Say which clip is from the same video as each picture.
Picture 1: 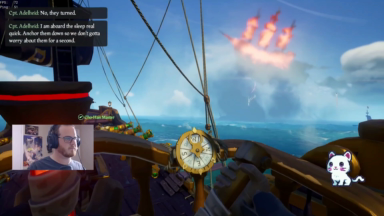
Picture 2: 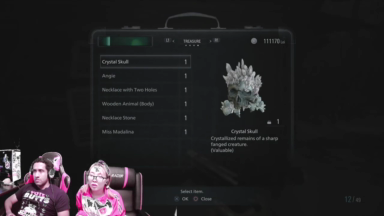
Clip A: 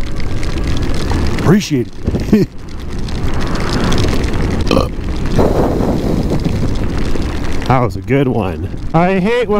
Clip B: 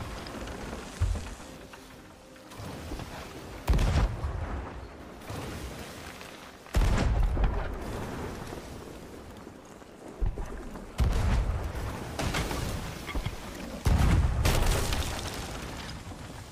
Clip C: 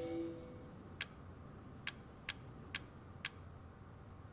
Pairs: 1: B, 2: C